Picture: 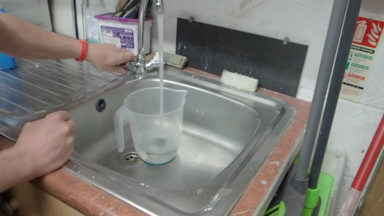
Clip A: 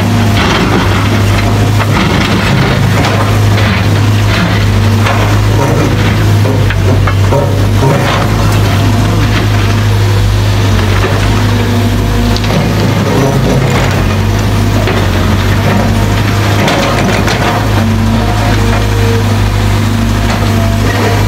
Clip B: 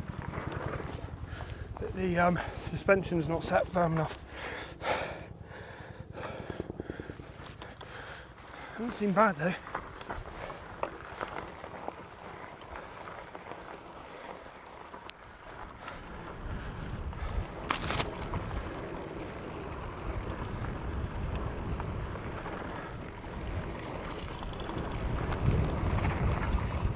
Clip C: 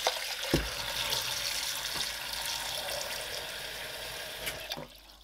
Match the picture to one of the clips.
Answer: C